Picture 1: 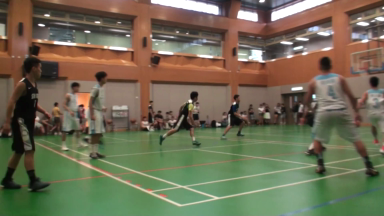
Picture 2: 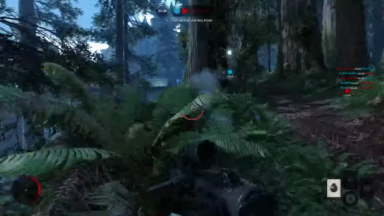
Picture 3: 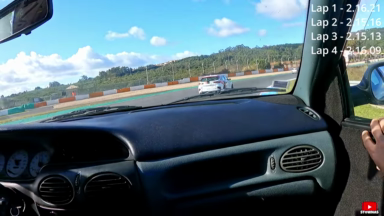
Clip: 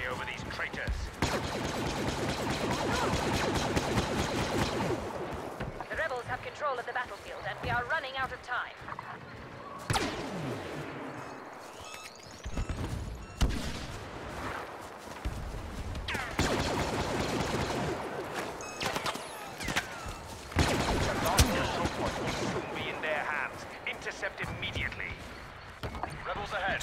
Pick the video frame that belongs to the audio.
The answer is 2